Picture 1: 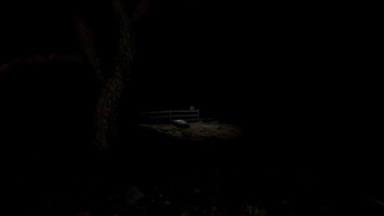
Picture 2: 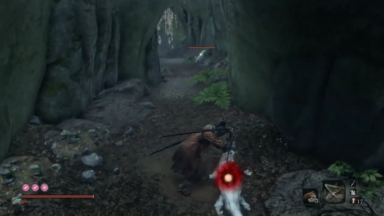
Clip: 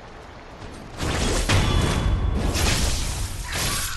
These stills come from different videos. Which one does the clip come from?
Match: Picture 2